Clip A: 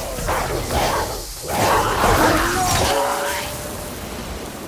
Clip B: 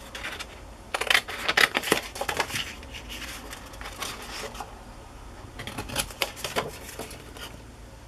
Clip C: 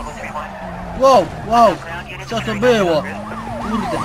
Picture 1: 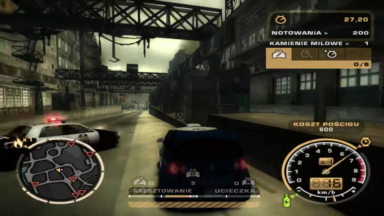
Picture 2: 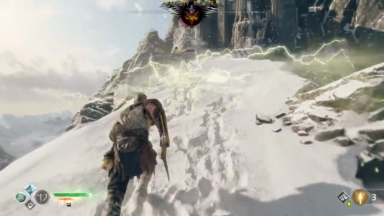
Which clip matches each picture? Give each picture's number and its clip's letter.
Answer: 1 C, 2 A